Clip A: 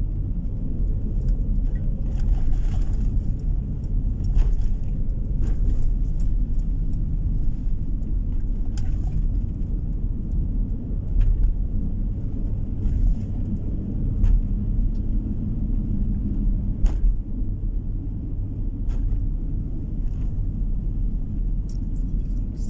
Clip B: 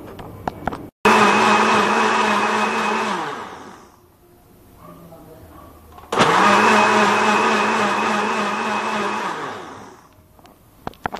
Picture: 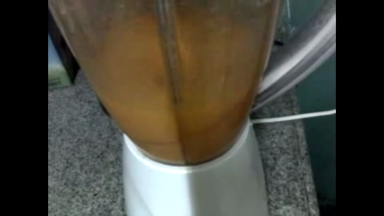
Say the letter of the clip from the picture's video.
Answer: B